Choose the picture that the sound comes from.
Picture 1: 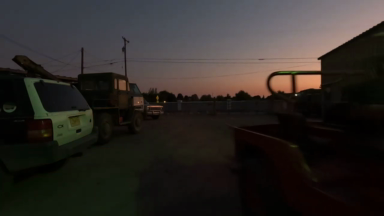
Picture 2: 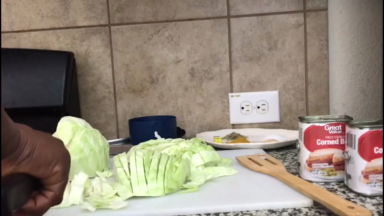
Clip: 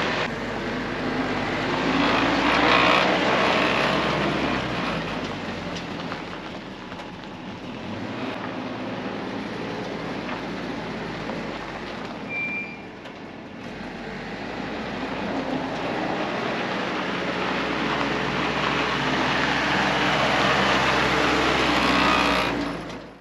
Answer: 1